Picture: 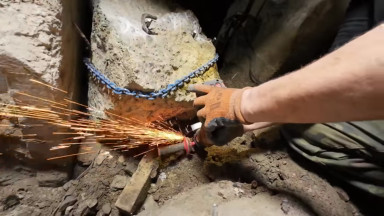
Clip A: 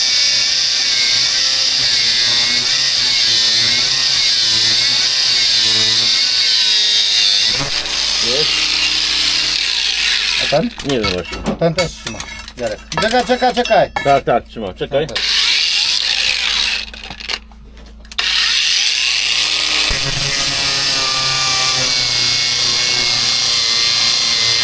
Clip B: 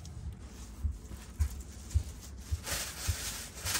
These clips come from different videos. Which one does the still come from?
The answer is A